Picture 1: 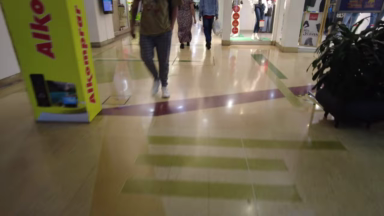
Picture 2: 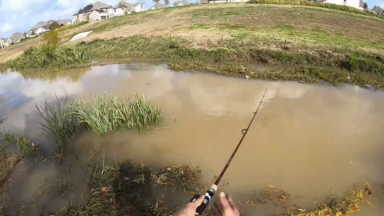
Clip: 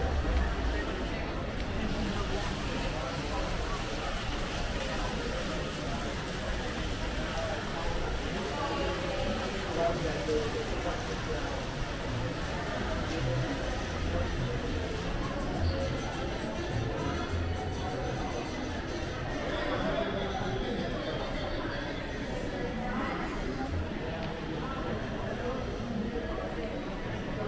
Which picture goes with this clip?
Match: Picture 1